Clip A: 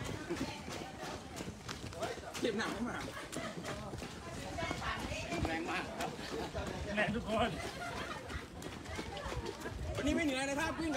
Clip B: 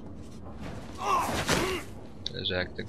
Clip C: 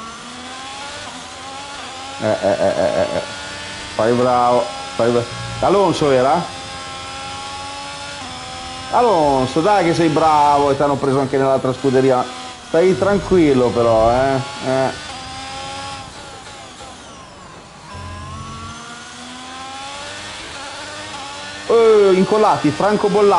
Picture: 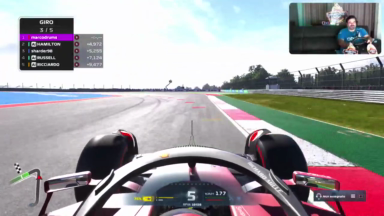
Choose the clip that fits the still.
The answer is C